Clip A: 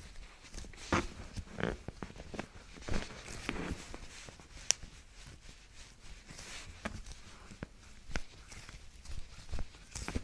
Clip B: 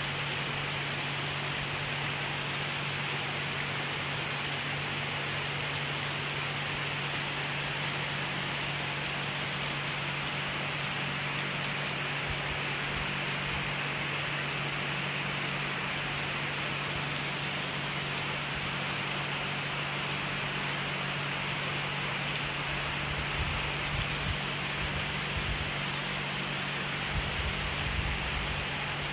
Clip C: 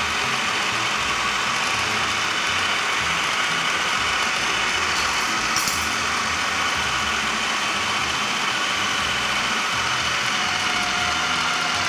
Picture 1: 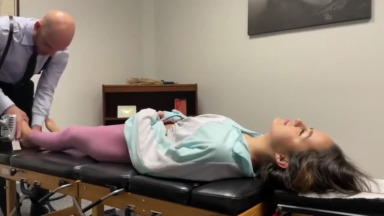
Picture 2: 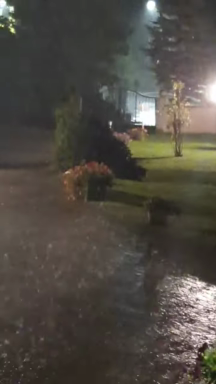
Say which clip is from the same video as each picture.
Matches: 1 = A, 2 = B